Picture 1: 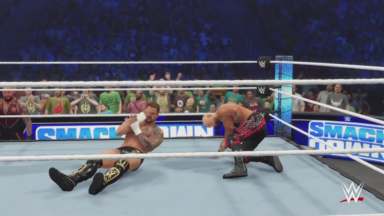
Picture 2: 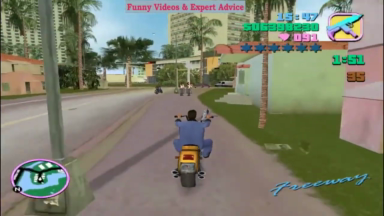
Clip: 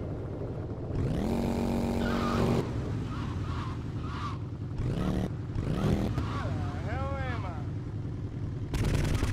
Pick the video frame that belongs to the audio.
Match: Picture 2